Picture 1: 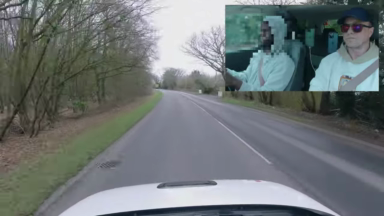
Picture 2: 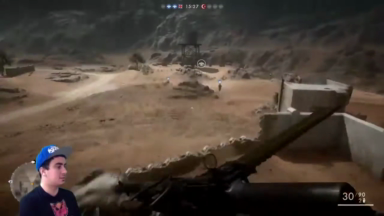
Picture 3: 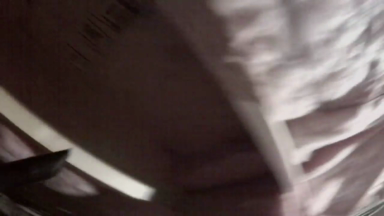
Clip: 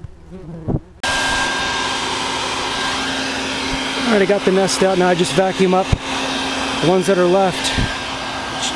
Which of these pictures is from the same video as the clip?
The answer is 3